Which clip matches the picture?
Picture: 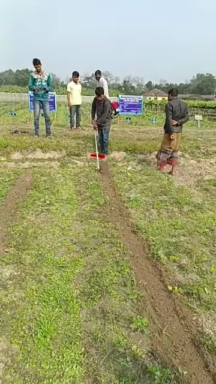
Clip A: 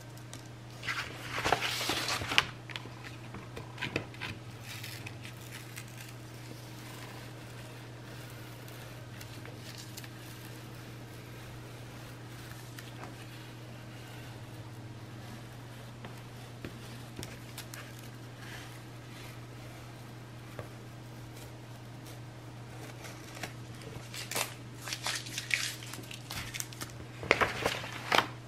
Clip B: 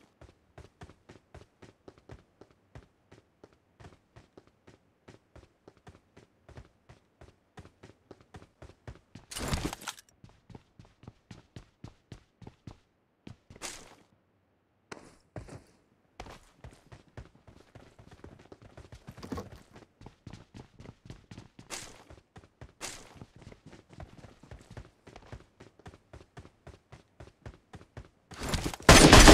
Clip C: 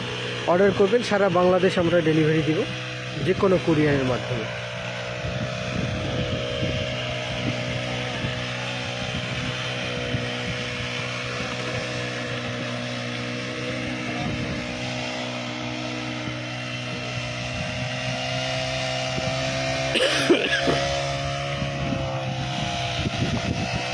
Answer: C